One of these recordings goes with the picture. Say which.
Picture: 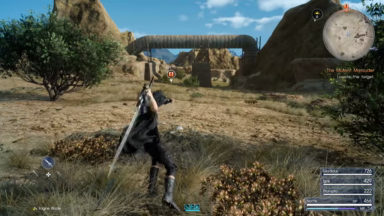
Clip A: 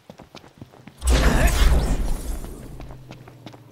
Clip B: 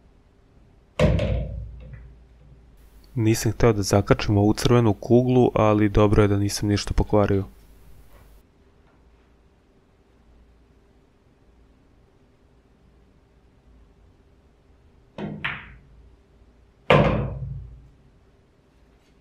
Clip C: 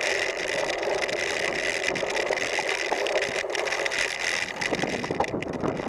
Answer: A